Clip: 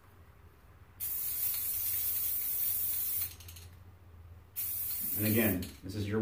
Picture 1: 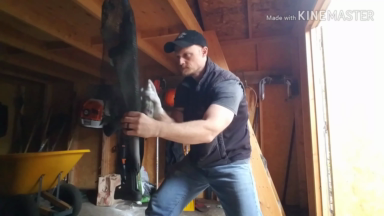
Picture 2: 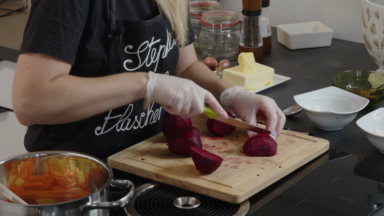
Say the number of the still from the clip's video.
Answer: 1